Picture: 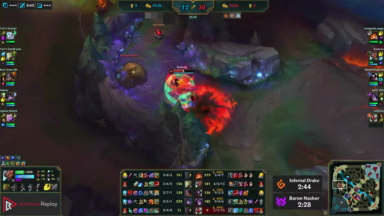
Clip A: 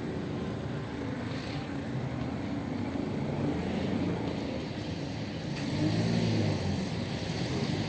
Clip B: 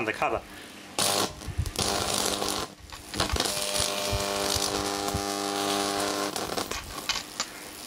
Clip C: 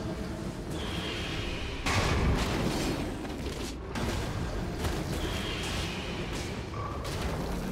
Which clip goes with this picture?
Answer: C